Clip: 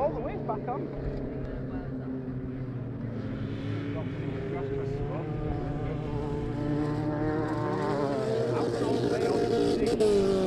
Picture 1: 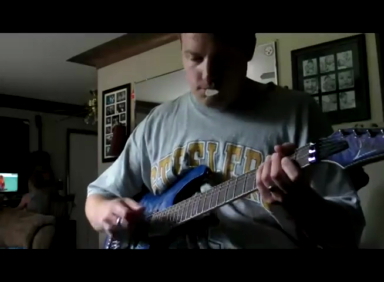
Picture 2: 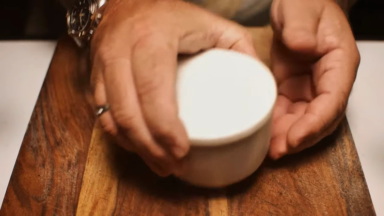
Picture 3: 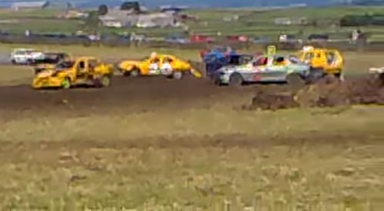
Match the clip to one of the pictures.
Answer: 3